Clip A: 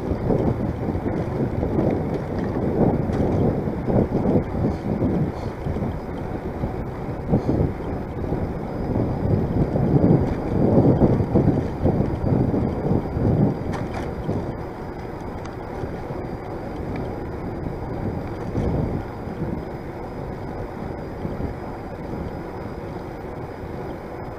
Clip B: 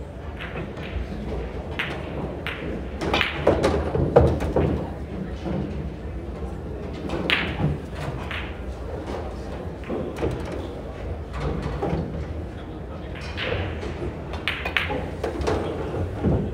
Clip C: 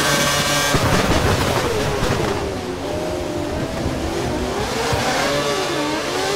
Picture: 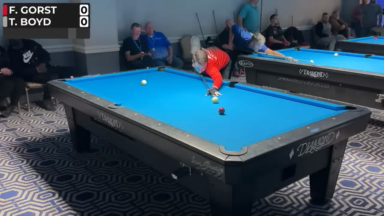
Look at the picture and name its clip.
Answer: B